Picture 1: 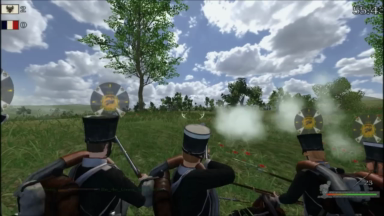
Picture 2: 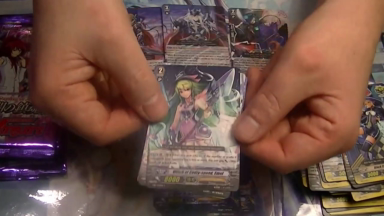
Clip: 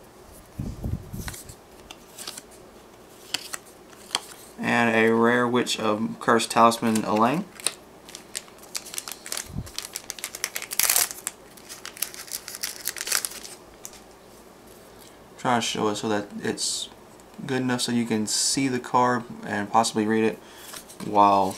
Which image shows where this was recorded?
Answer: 2